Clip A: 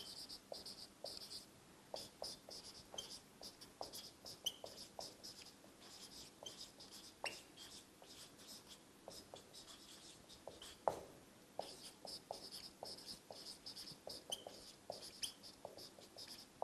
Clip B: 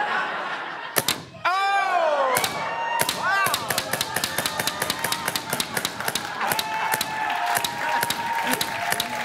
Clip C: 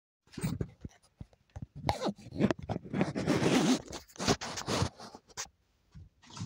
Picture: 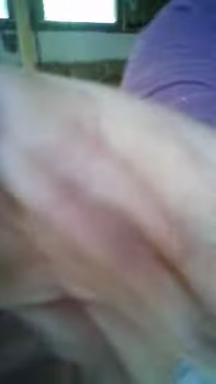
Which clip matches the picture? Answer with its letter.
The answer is C